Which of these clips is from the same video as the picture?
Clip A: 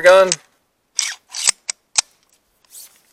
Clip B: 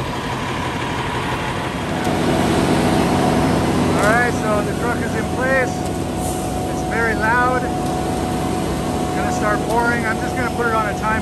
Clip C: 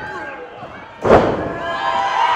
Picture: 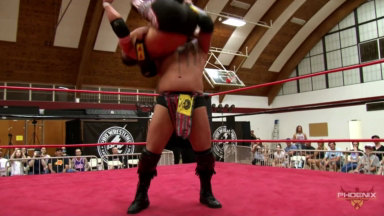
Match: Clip C